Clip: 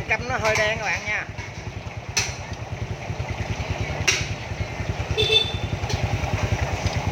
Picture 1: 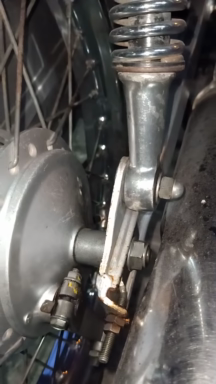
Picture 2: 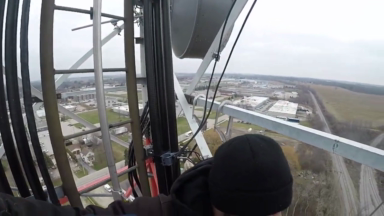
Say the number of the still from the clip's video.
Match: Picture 1